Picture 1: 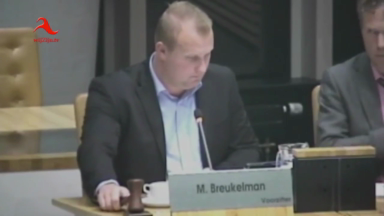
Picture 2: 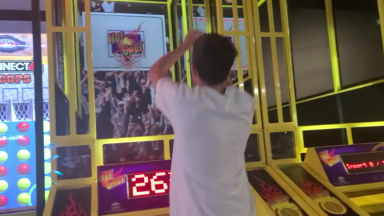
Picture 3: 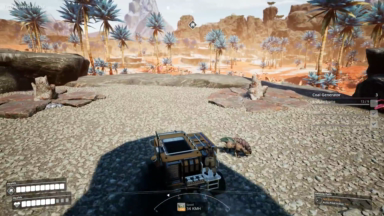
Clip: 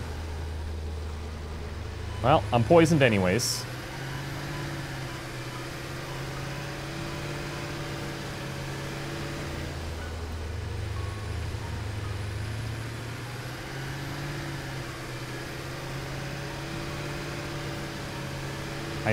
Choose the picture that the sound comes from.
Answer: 3